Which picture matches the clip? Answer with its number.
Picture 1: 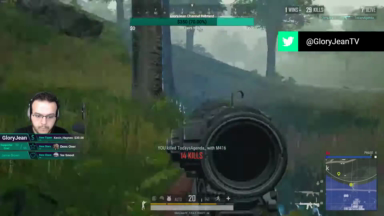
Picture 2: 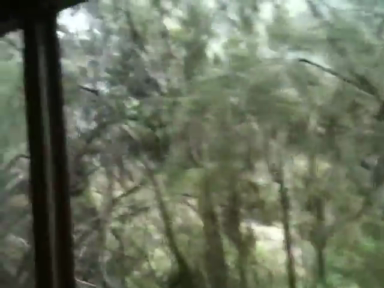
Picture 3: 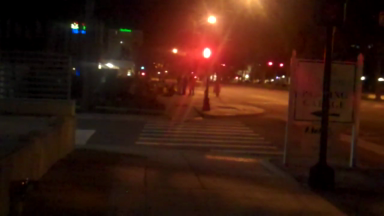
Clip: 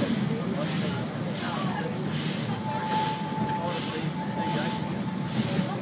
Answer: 2